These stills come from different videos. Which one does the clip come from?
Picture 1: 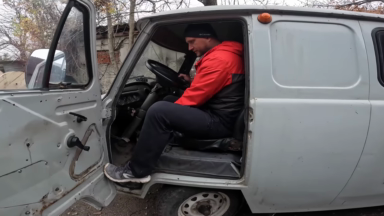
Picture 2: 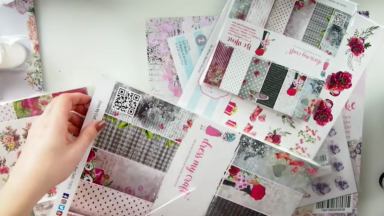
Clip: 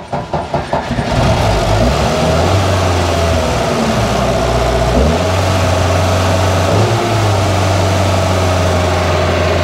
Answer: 1